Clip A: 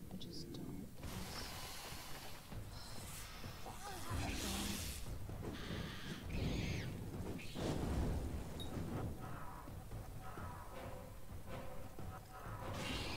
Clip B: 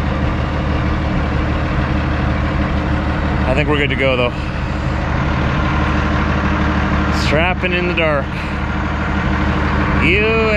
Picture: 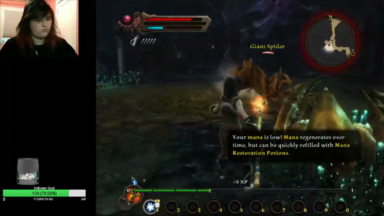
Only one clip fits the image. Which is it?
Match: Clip A